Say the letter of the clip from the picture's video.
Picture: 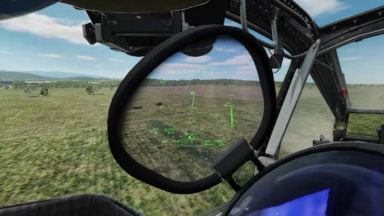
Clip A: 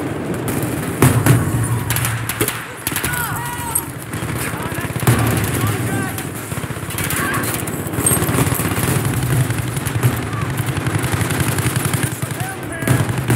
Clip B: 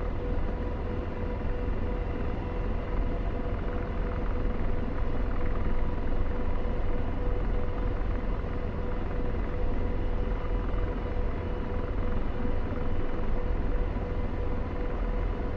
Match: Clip B